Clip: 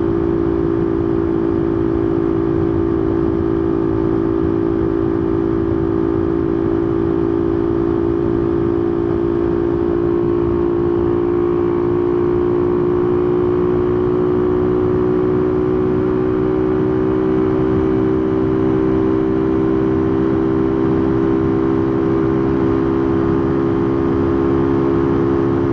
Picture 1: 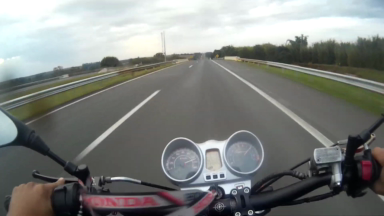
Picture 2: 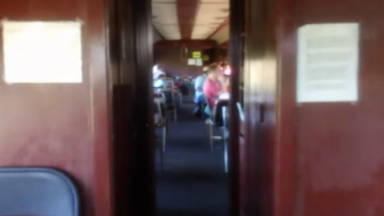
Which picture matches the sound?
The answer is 1